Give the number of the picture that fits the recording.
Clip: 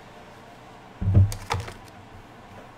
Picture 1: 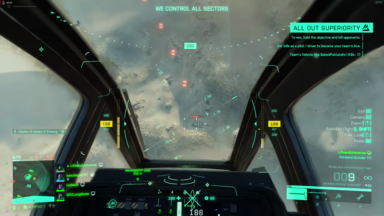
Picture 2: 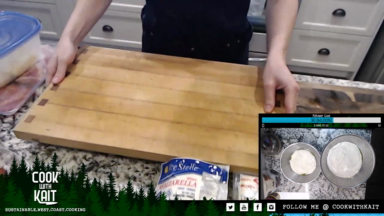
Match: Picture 2